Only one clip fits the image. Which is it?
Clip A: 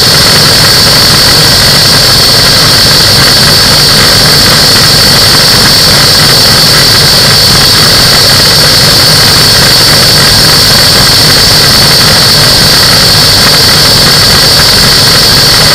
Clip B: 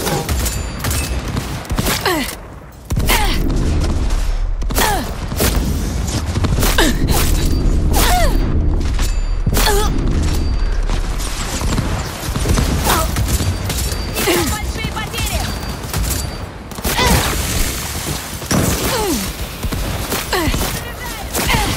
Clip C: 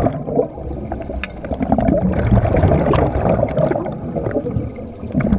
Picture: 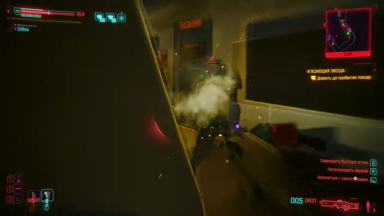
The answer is B